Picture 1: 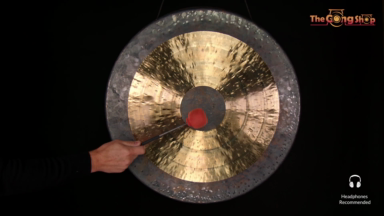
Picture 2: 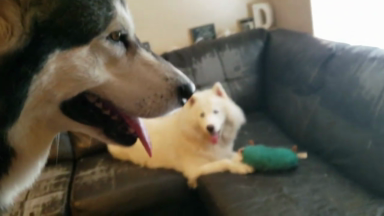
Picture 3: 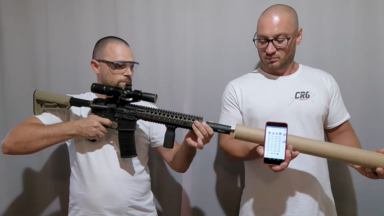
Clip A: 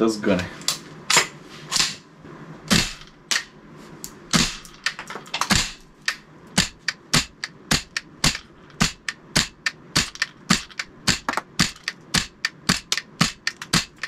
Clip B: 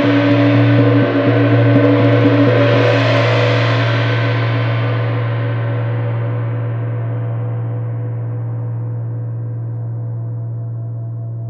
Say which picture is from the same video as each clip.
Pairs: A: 3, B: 1